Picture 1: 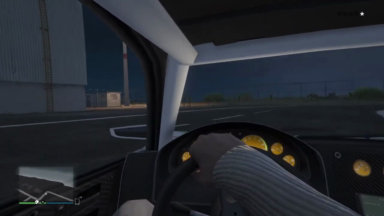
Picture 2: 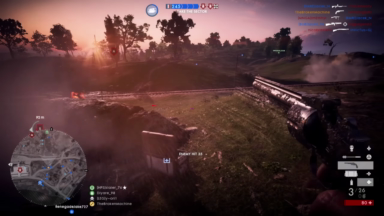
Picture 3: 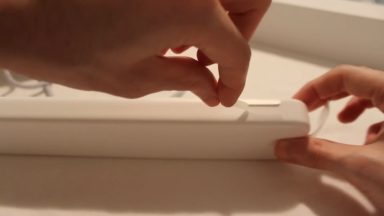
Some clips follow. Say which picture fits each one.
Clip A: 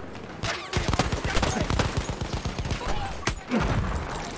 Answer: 2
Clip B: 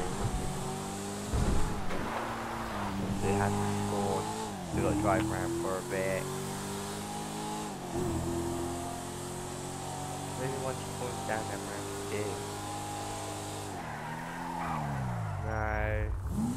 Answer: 1